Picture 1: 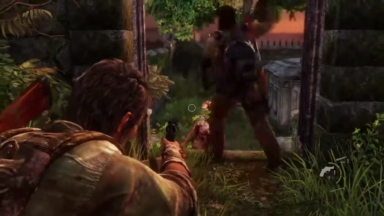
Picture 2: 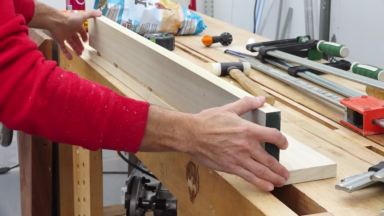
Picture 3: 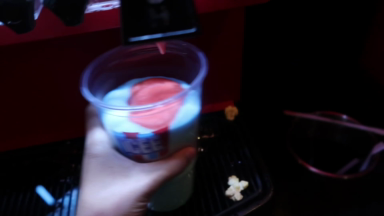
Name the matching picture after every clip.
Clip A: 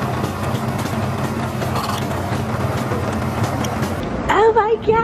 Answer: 3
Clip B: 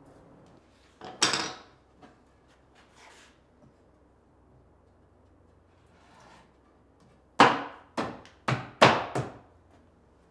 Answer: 2